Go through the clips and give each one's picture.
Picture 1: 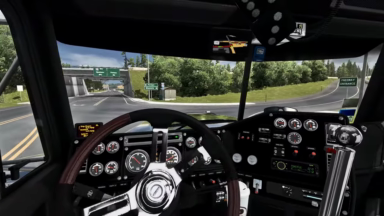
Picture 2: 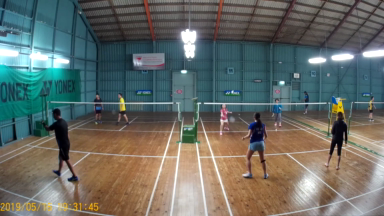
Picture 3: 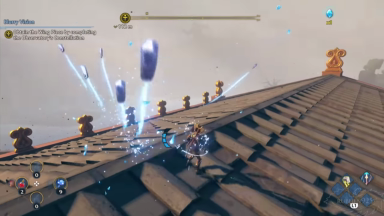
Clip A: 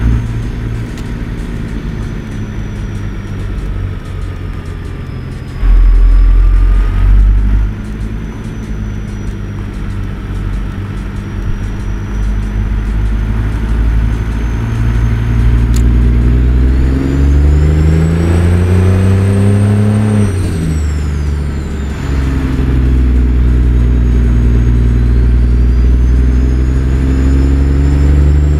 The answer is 1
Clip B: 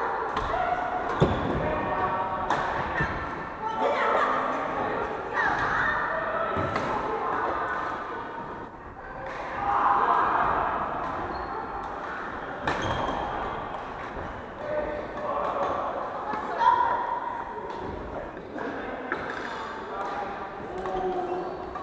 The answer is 2